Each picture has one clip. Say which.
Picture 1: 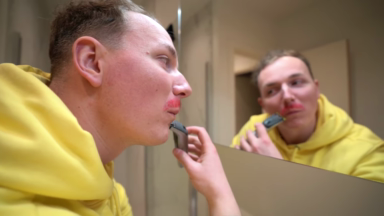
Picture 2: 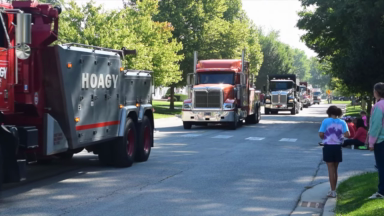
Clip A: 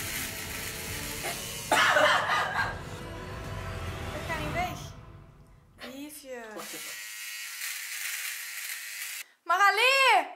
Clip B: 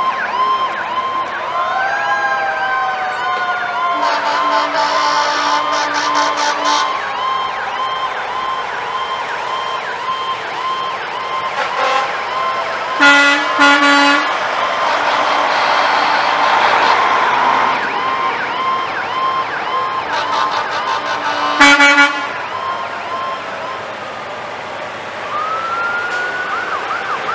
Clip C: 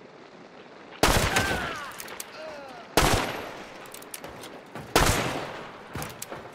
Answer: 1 A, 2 B